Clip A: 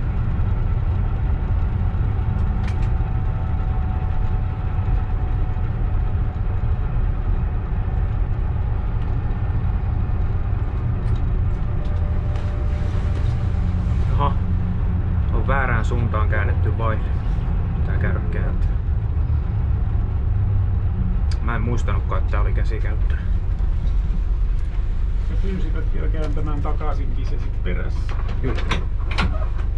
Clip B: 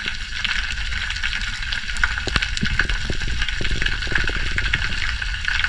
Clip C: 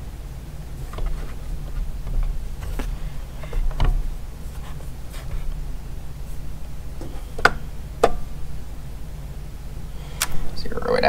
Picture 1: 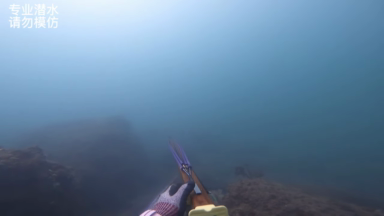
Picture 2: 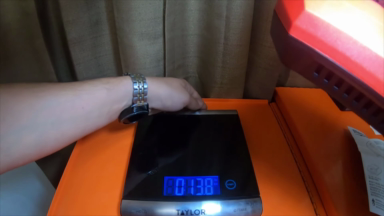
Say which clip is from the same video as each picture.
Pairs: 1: B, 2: C